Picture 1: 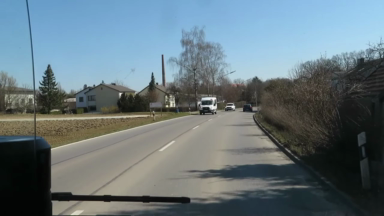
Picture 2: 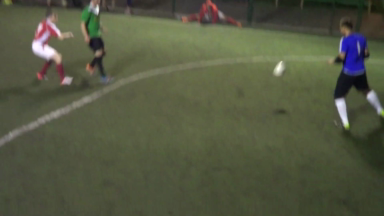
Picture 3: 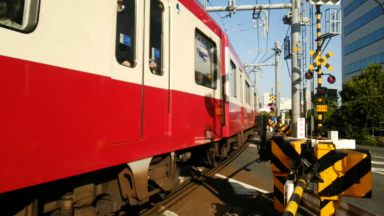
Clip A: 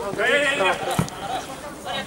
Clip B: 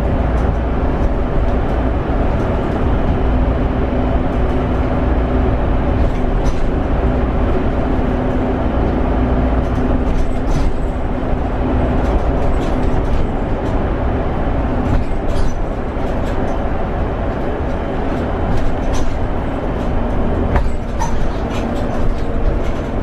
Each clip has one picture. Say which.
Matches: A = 2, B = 1